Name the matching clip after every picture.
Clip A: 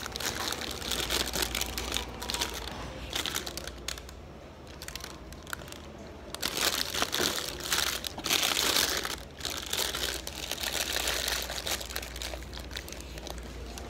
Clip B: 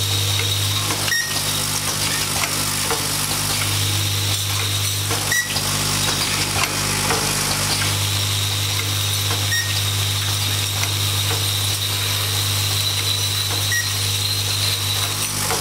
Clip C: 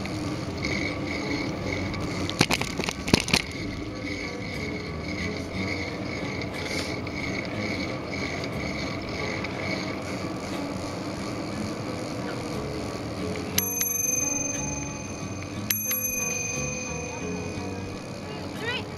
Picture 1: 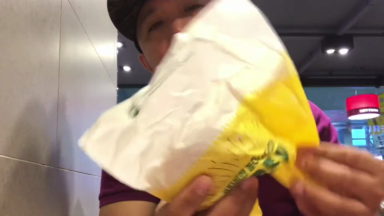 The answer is A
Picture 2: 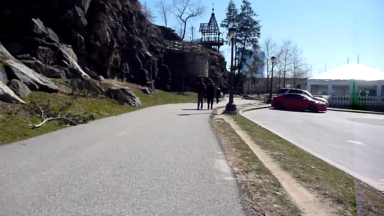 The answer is C